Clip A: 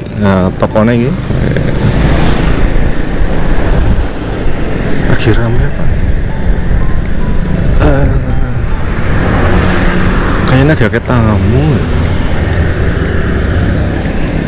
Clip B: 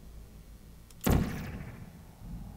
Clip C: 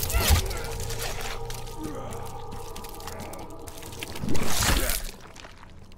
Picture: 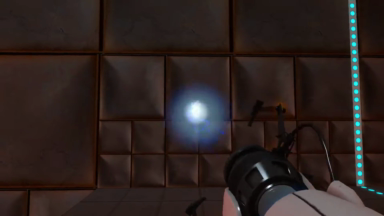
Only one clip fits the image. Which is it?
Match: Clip B